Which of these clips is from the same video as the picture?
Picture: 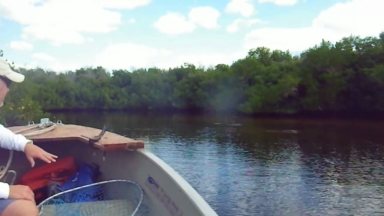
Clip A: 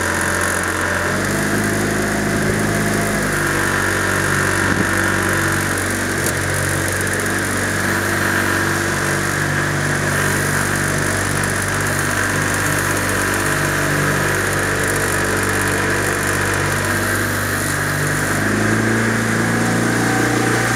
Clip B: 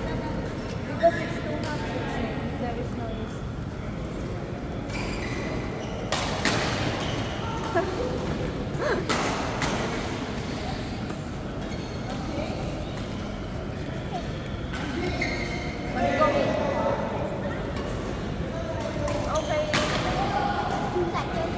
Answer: A